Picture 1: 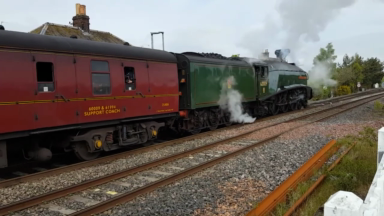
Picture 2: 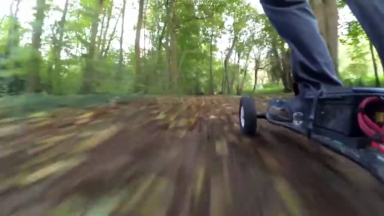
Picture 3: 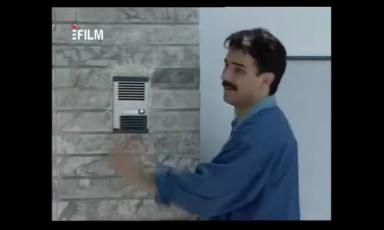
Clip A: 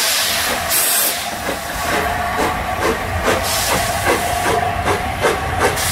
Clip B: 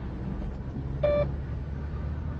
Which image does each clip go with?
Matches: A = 1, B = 3